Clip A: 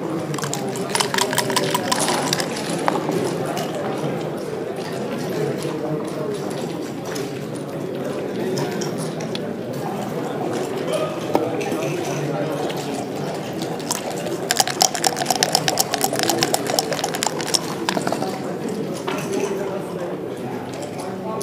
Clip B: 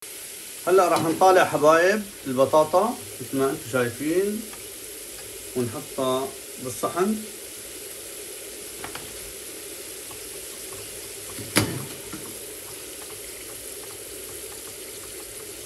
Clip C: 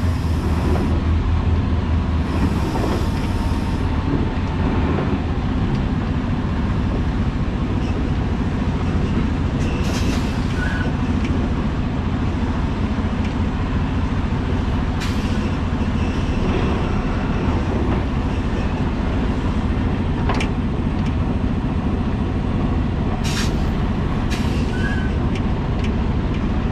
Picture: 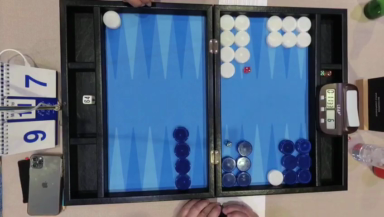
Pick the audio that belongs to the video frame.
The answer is A